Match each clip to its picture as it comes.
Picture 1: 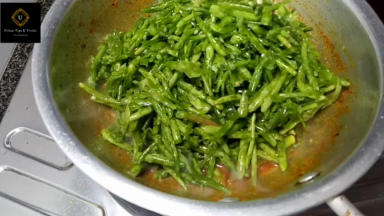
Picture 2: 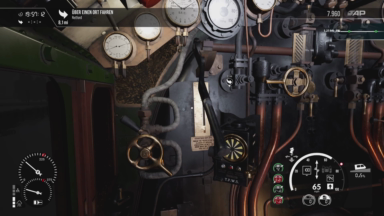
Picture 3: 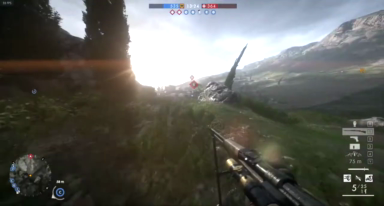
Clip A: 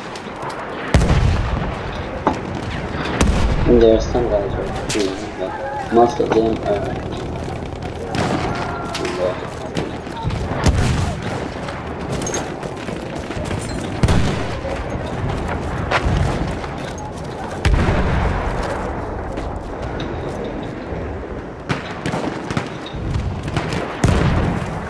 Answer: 3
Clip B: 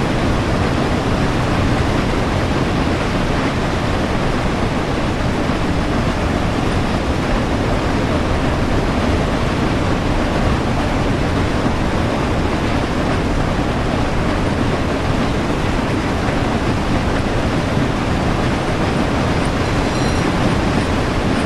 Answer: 2